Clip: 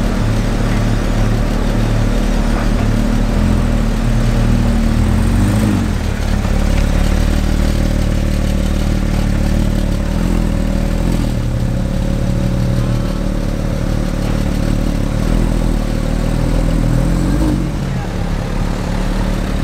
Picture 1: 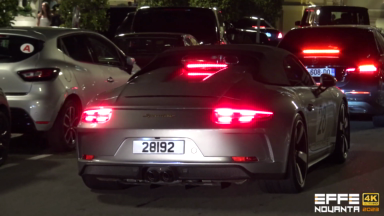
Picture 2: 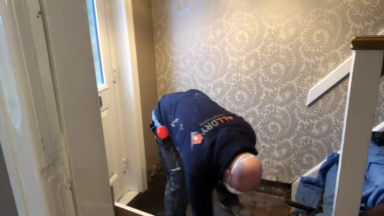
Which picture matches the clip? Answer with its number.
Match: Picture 1